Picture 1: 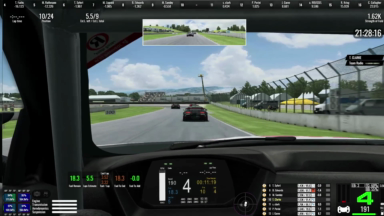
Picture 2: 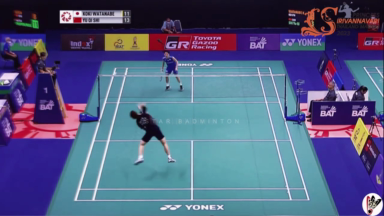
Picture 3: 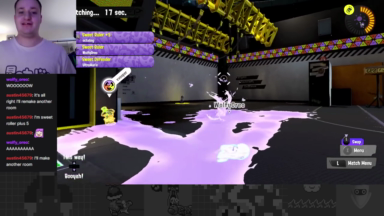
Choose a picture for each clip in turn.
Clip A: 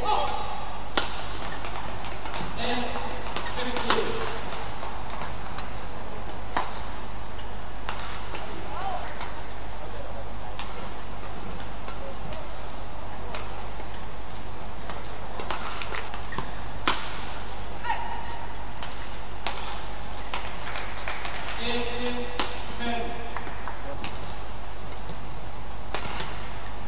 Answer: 2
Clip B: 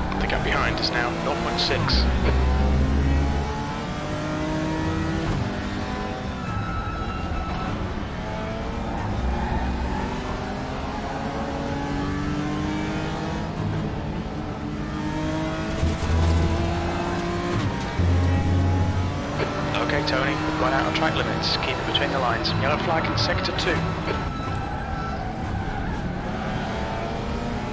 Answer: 1